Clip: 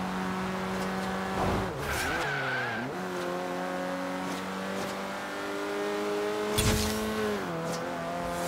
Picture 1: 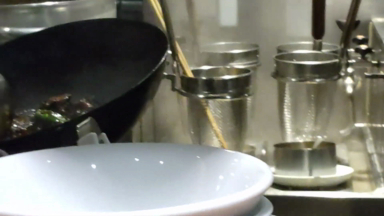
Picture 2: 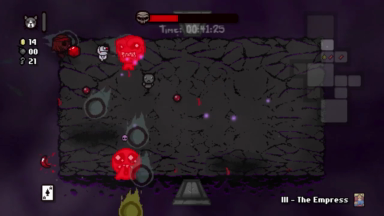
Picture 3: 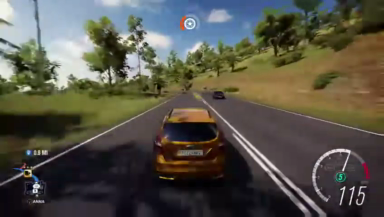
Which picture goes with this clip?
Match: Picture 3